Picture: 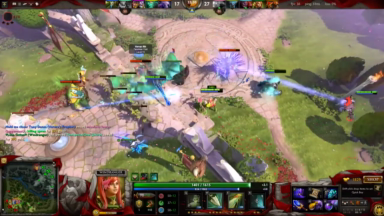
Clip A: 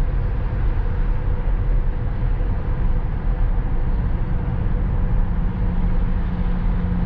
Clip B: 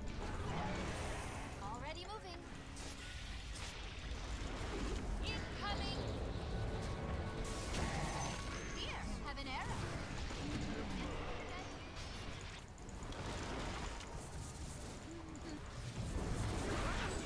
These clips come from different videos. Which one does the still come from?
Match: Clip B